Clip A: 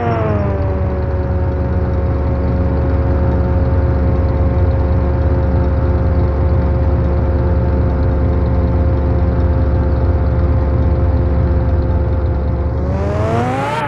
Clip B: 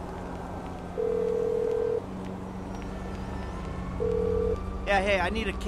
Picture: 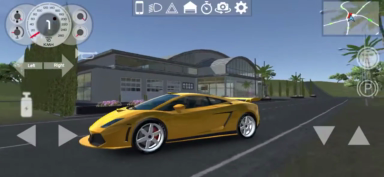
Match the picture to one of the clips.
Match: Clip A